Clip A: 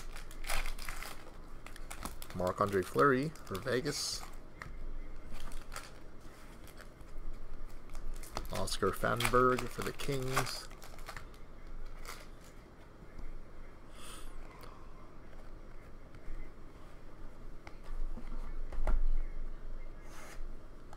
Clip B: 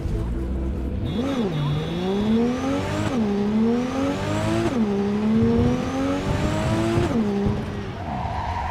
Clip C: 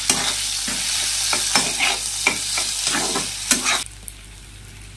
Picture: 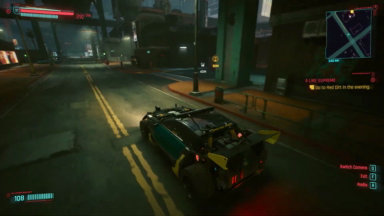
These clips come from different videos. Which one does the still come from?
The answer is B